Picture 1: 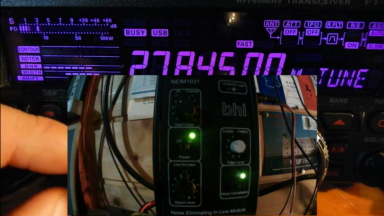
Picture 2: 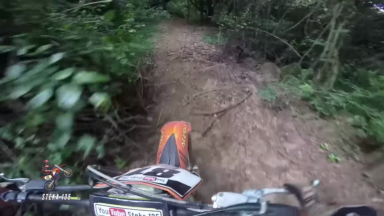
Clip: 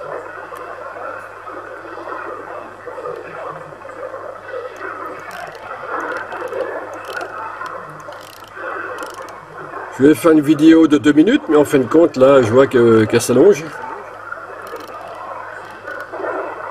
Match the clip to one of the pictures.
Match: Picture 1